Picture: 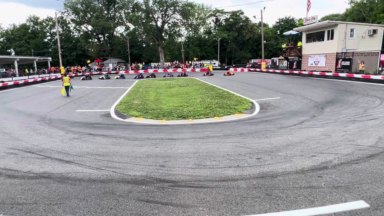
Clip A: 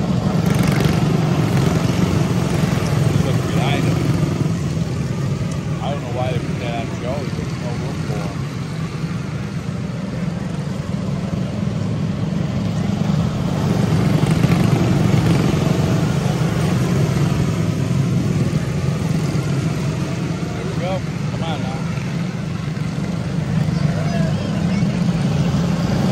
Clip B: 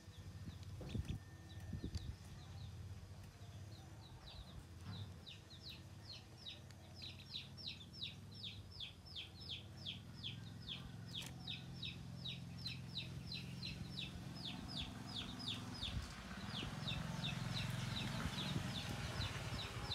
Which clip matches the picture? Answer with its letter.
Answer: A